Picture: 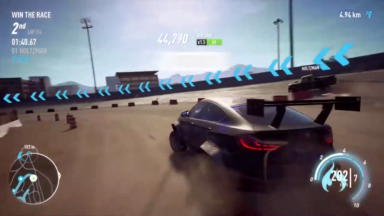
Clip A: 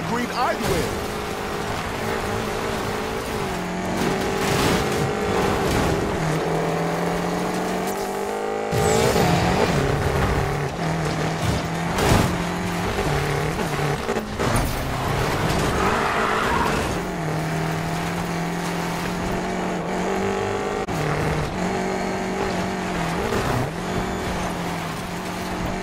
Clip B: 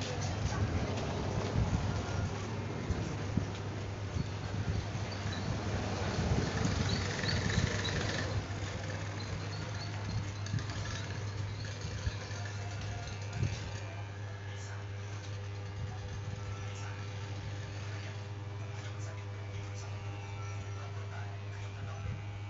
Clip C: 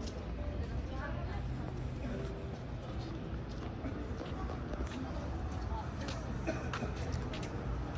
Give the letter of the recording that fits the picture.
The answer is A